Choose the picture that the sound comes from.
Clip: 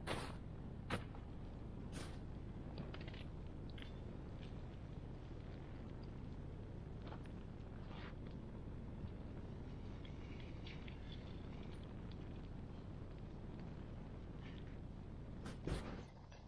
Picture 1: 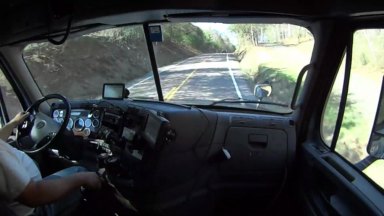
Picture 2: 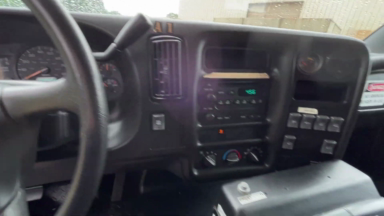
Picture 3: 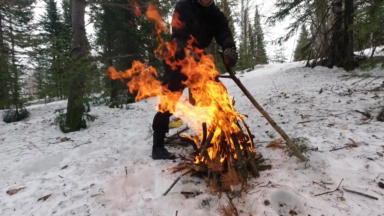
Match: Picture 3